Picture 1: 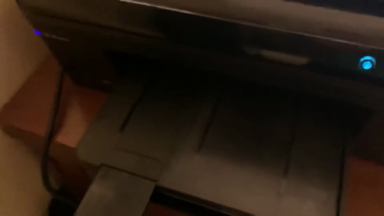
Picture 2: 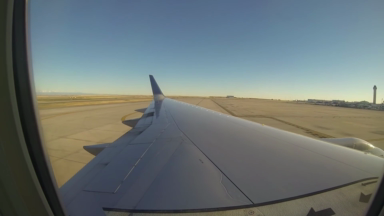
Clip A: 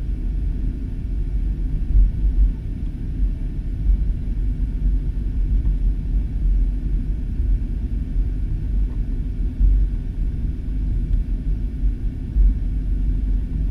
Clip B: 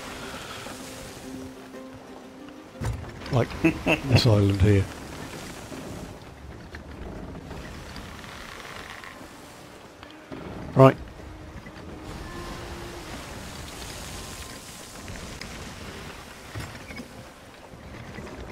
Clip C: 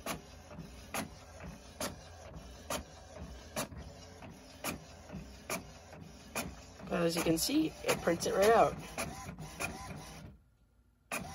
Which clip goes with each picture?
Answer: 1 C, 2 A